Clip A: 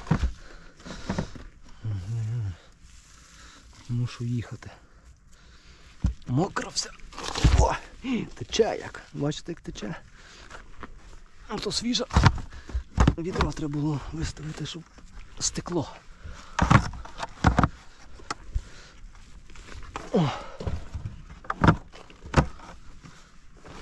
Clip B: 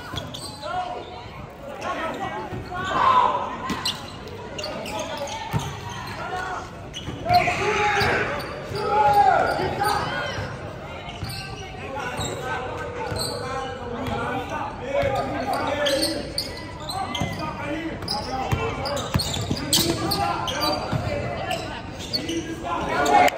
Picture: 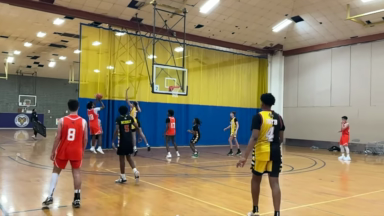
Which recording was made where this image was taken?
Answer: B